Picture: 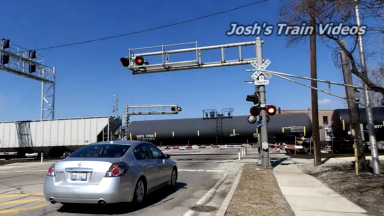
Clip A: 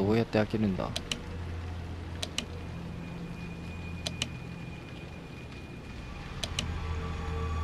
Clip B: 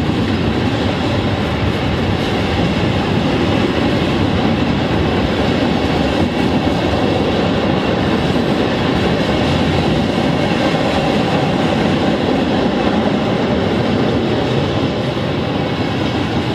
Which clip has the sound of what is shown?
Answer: B